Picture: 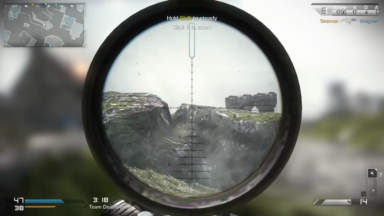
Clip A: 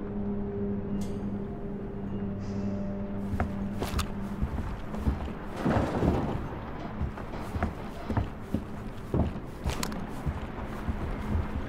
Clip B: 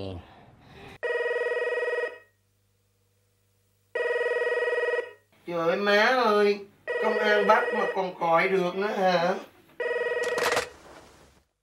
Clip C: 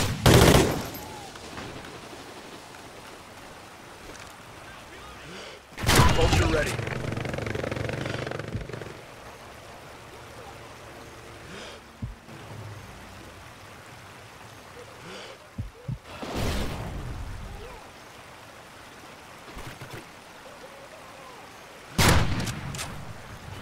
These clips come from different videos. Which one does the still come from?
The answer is C